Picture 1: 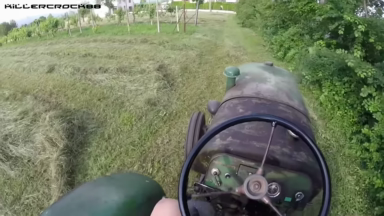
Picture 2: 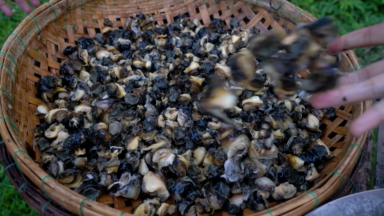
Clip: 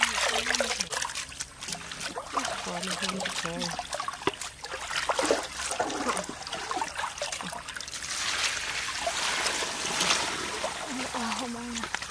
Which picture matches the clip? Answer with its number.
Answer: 2